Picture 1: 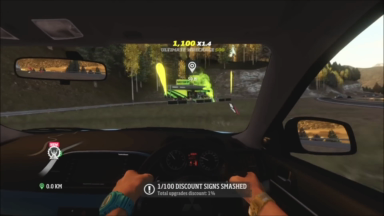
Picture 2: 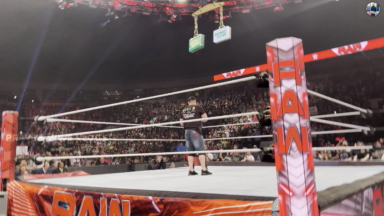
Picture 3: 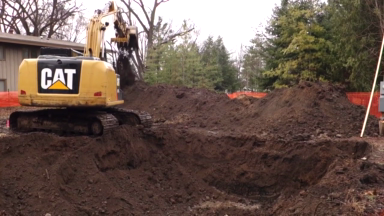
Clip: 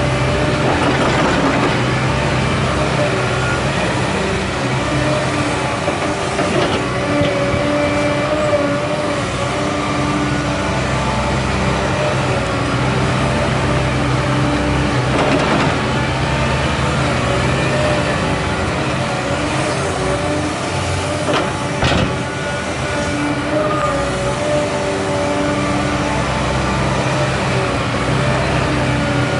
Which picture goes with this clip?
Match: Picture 3